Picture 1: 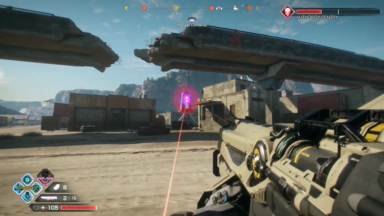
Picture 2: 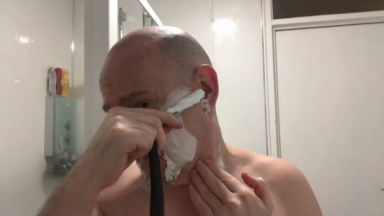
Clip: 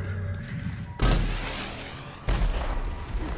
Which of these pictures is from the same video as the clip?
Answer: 1